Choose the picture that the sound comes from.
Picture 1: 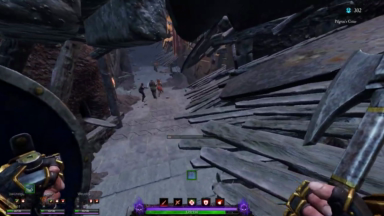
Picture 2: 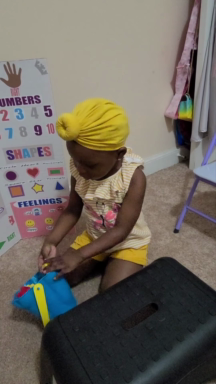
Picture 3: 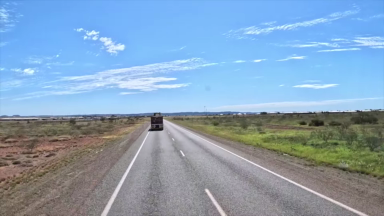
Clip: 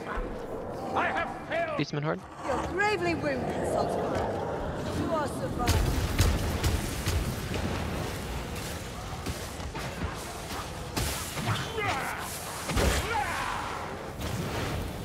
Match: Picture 1